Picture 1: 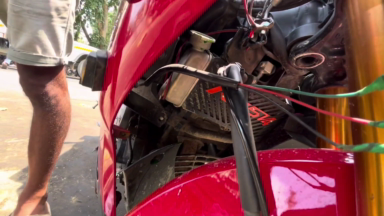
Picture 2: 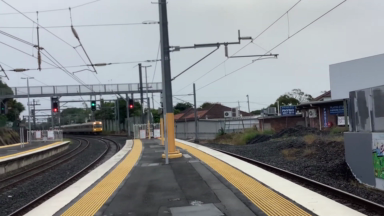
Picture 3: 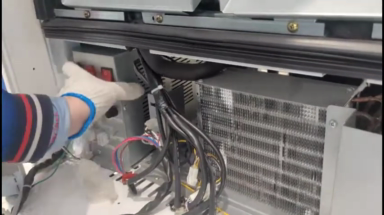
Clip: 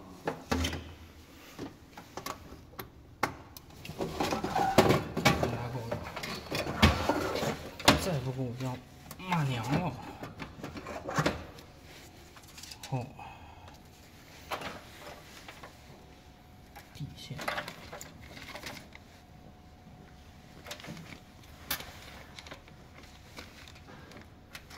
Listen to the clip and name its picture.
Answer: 3